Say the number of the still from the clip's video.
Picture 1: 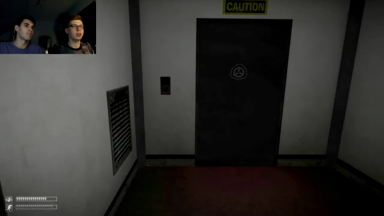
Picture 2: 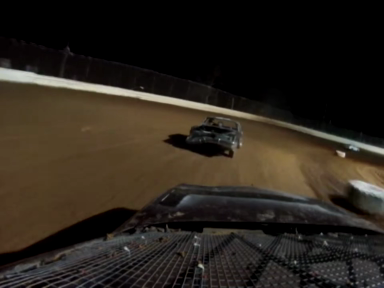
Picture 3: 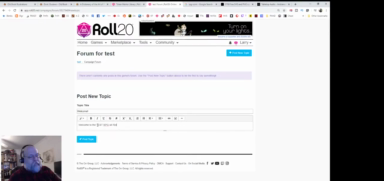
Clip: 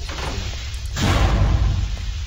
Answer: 1